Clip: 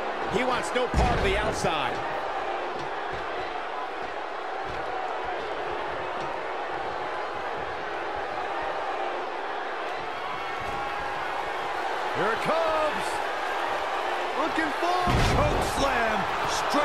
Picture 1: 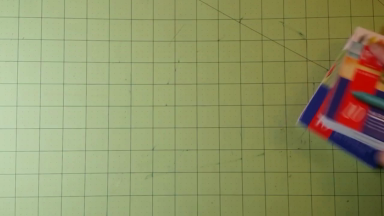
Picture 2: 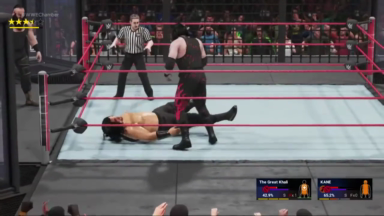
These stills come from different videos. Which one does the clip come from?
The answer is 2